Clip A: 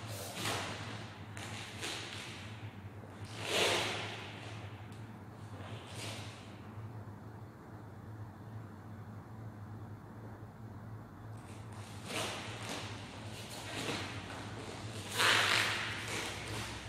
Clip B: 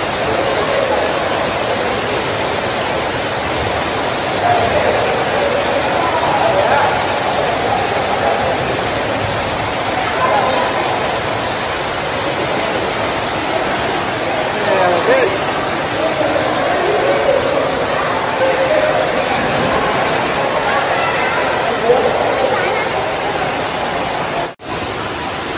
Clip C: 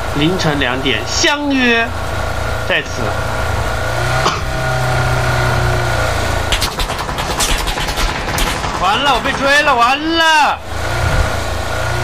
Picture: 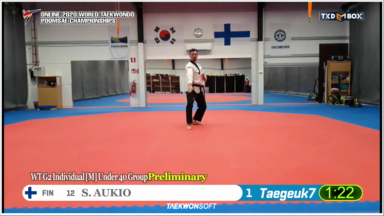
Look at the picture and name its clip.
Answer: A